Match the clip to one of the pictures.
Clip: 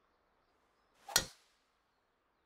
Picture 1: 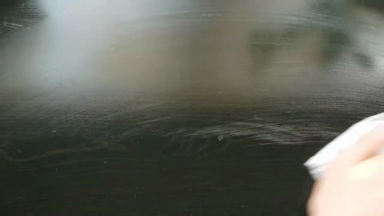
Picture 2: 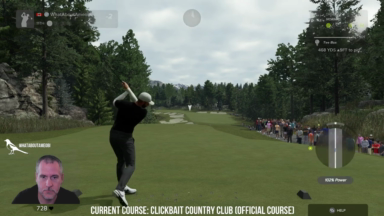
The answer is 2